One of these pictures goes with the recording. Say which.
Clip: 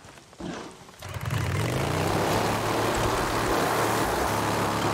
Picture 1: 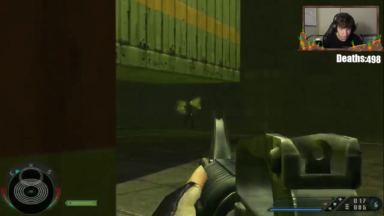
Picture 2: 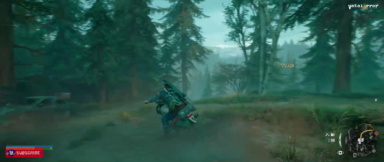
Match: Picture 2